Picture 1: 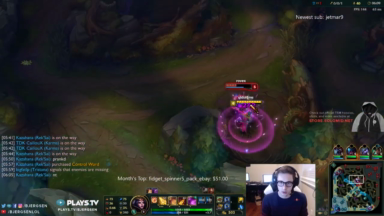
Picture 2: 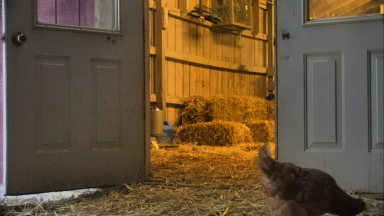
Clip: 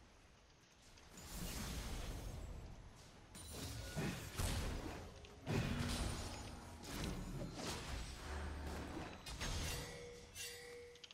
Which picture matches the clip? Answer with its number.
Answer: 1